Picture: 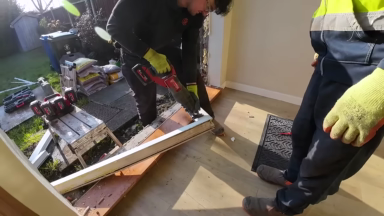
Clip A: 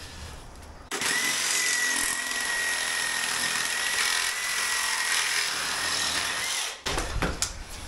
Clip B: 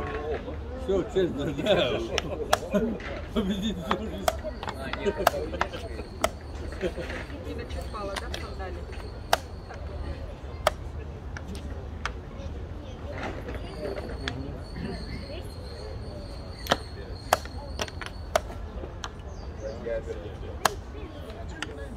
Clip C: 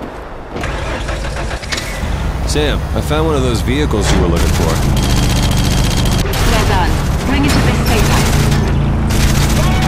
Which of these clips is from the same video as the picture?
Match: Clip A